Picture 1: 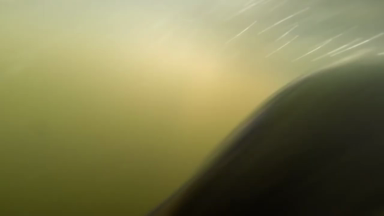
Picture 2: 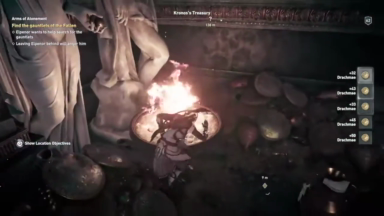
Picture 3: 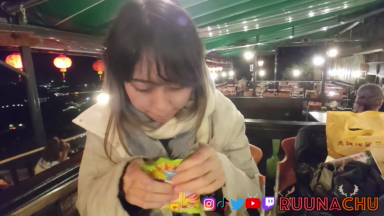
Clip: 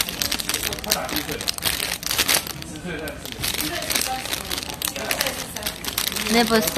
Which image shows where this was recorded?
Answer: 3